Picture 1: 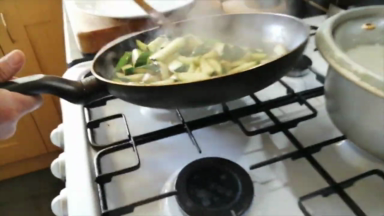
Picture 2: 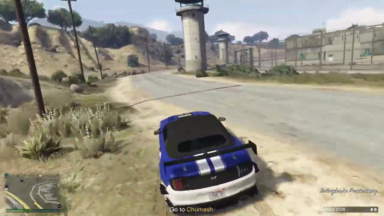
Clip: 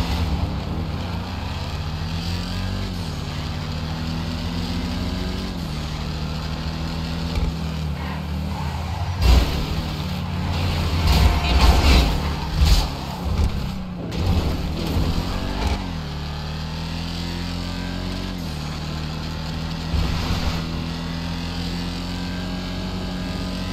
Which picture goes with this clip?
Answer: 2